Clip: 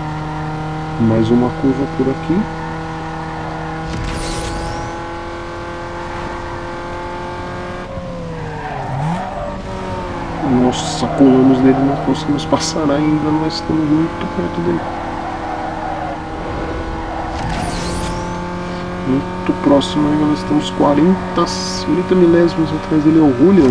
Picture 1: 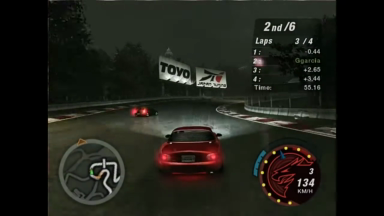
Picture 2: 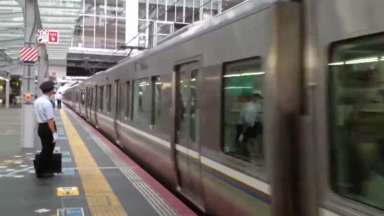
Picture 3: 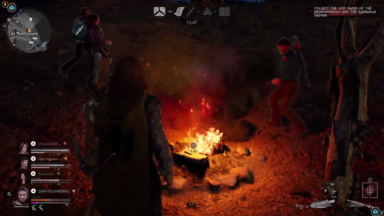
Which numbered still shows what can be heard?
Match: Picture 1